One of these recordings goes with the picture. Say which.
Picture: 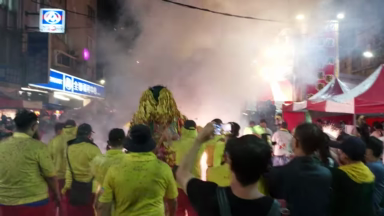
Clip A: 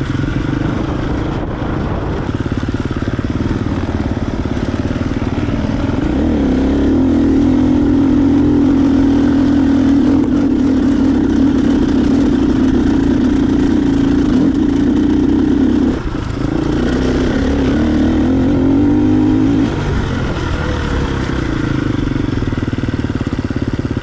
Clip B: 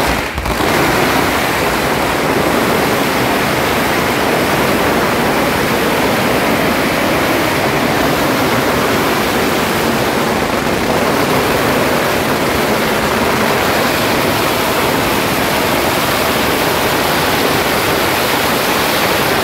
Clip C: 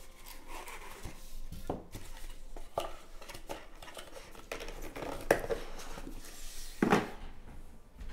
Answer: B